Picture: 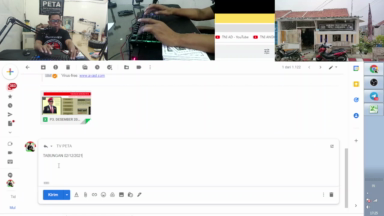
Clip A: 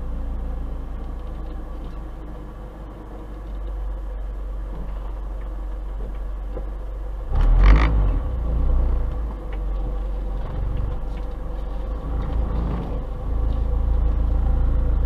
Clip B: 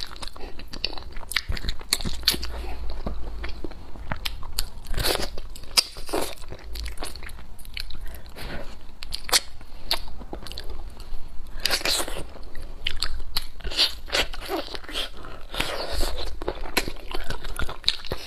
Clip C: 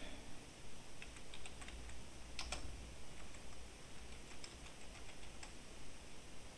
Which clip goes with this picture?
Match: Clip C